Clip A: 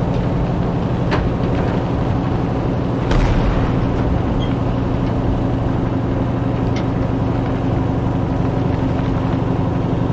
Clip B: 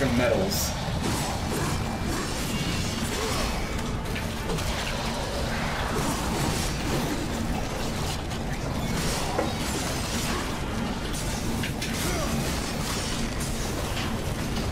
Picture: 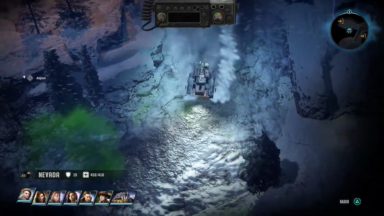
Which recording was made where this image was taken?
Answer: A